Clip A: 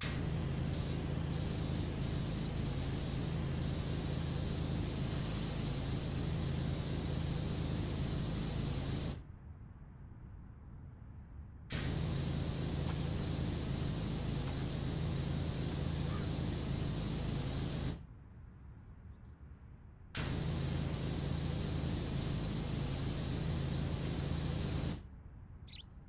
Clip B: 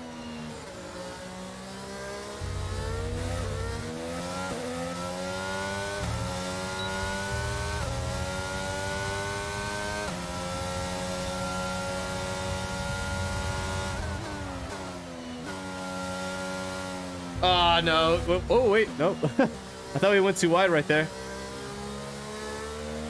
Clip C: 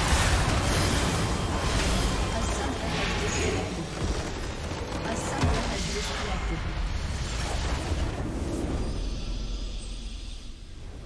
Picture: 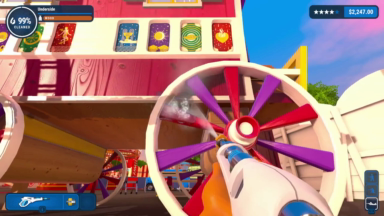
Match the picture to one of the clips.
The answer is A